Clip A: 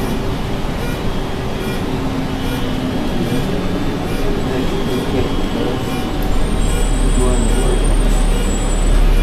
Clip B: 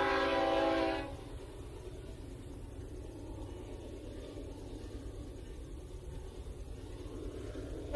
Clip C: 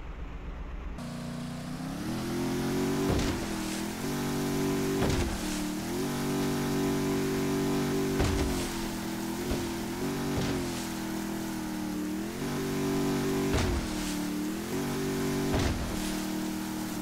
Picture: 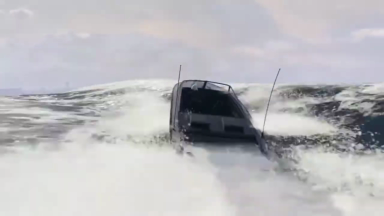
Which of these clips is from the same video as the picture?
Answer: C